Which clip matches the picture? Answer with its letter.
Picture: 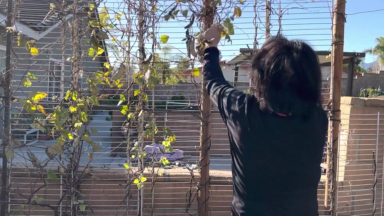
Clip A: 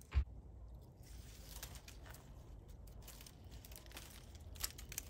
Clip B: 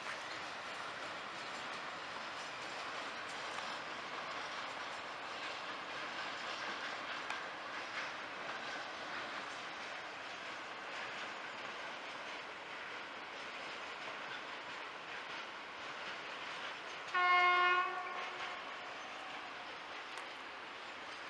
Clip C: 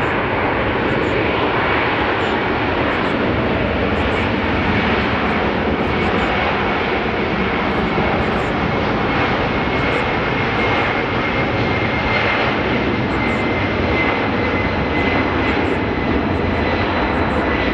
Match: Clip A